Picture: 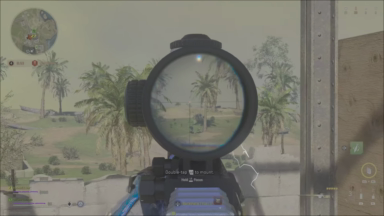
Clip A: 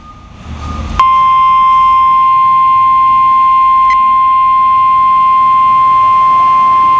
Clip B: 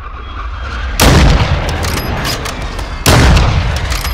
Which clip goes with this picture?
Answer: B